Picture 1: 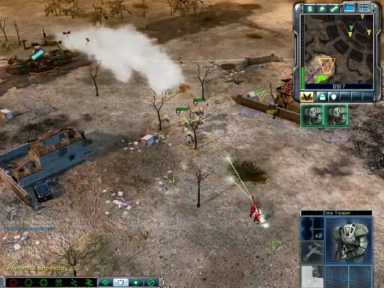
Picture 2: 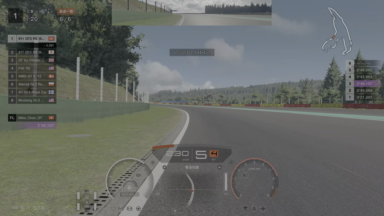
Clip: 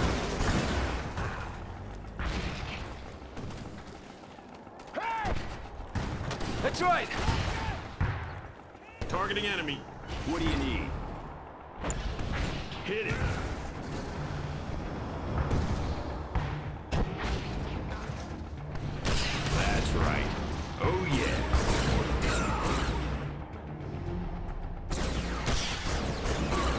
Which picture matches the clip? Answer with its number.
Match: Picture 1